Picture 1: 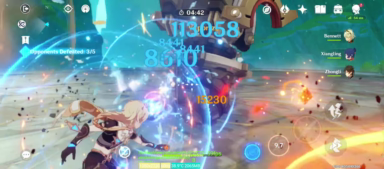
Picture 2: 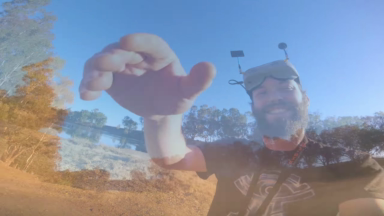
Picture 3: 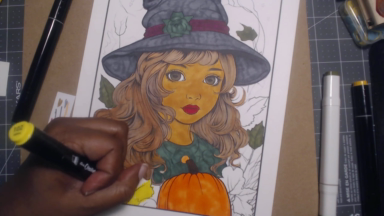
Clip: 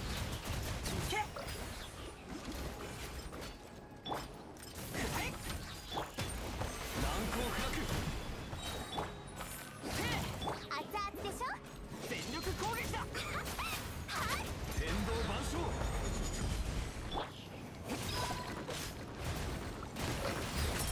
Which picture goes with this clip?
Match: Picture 1